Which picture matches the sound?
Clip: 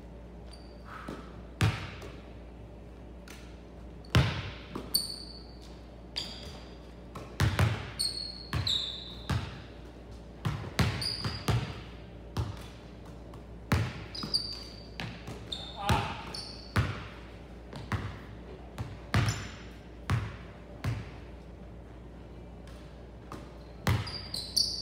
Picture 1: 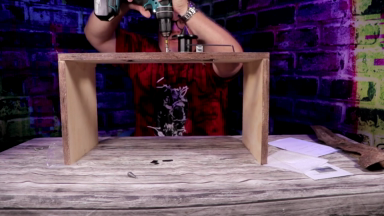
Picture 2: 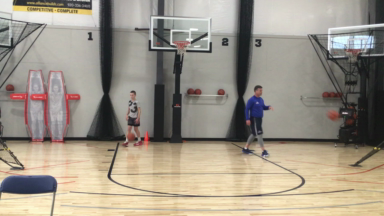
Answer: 2